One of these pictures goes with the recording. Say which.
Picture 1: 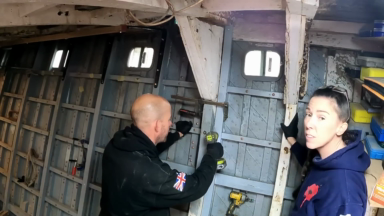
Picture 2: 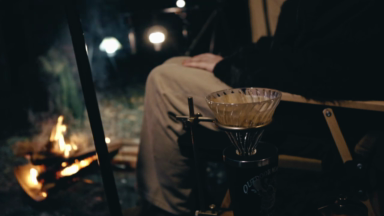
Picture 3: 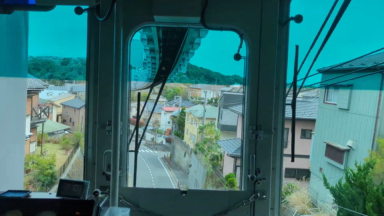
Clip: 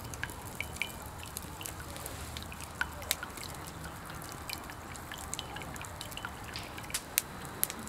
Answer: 2